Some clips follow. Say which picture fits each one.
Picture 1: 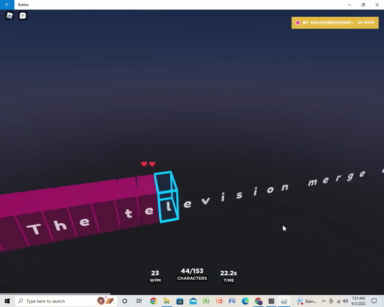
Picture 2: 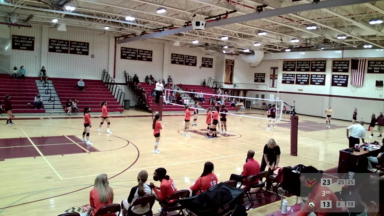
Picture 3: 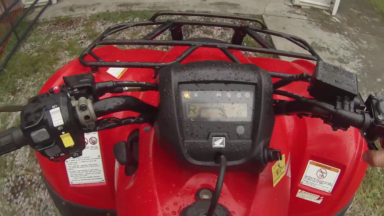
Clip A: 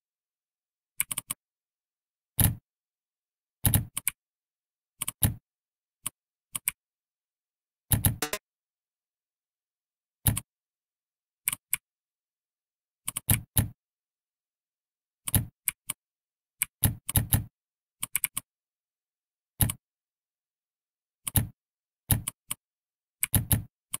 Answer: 1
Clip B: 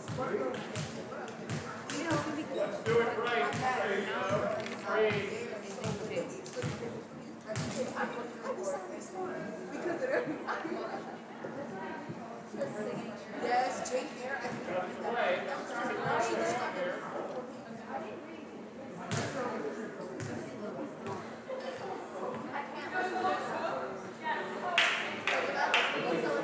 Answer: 2